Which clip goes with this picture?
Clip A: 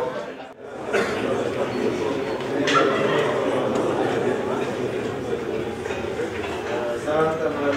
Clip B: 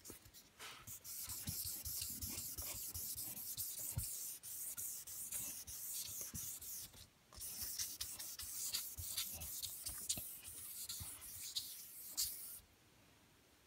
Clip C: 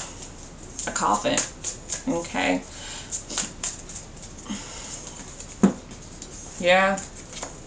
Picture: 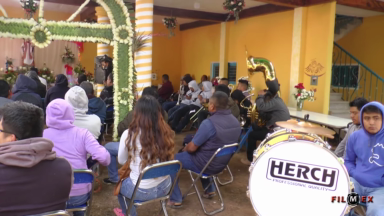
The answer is A